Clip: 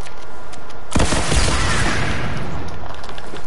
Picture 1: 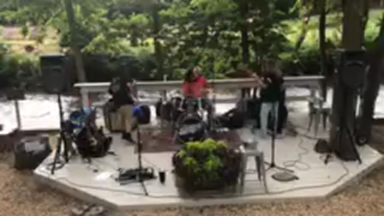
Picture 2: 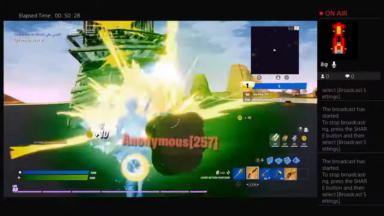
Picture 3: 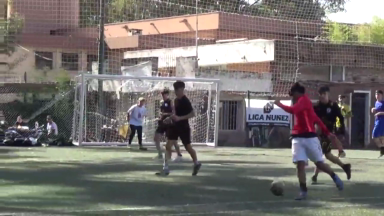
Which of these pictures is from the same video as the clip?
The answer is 2